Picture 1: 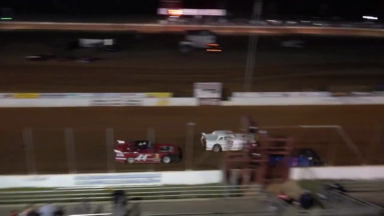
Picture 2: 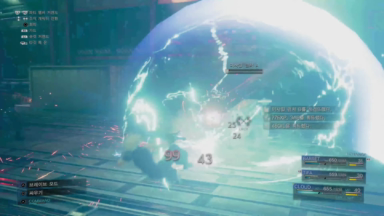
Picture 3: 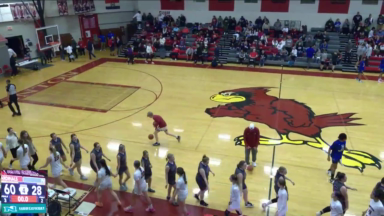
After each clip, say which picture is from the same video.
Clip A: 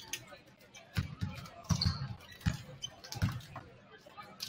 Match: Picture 3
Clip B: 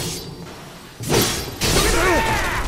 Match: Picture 2